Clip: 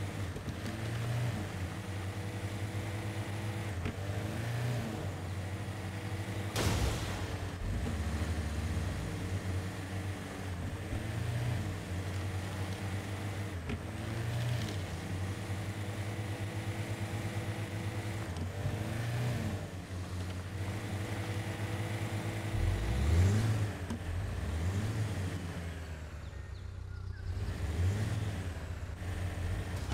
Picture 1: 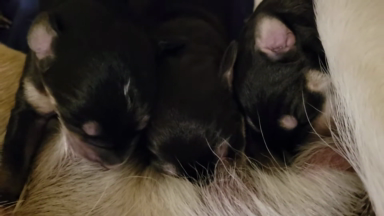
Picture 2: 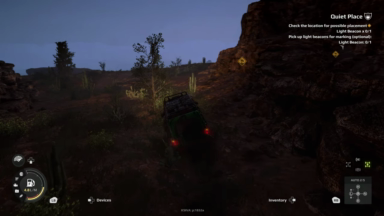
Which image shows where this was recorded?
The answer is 2